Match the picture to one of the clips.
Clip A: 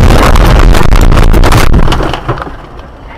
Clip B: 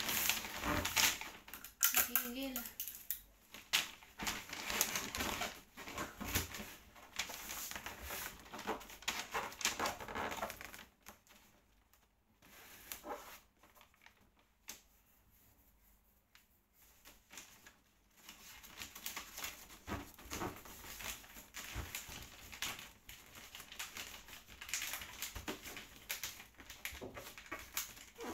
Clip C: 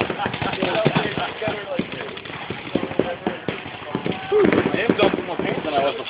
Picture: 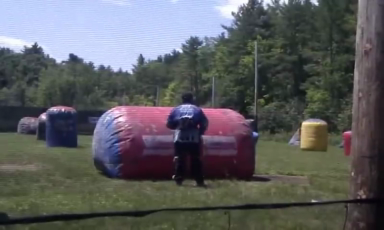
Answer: C